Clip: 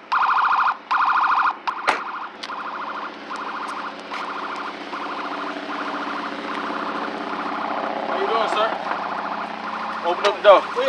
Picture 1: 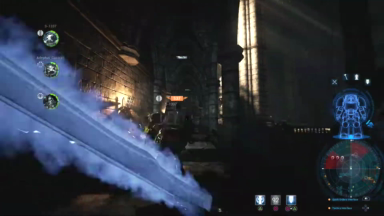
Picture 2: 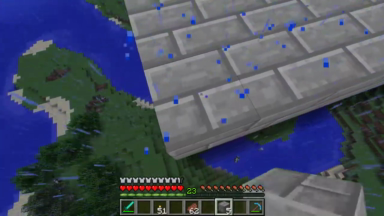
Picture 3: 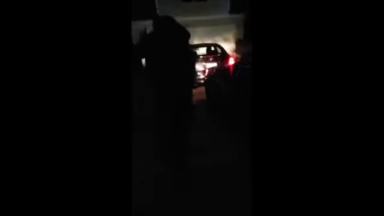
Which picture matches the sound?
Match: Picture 3